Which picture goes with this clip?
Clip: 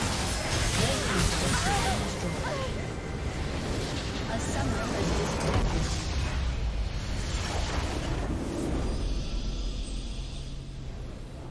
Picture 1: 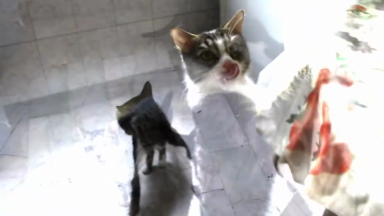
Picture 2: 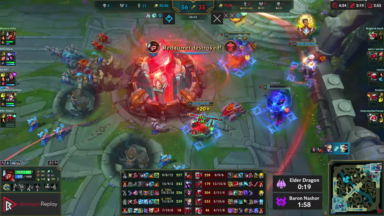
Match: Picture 2